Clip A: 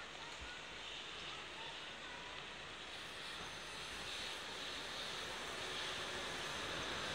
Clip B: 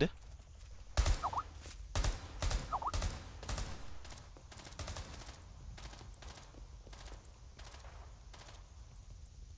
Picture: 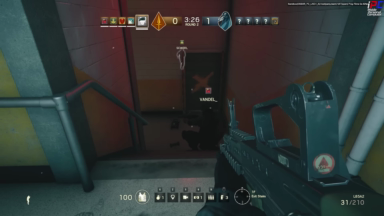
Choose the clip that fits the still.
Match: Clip B